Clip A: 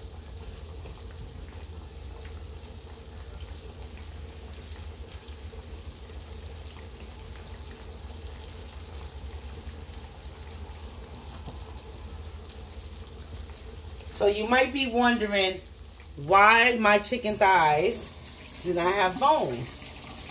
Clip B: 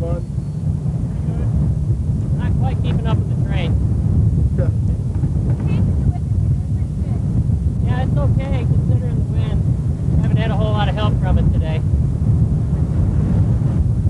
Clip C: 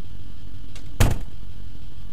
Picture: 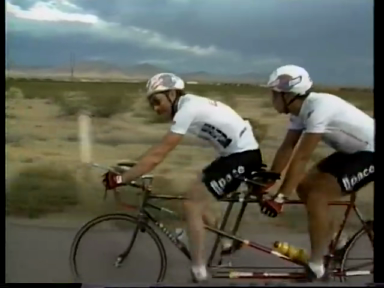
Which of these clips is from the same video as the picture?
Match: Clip B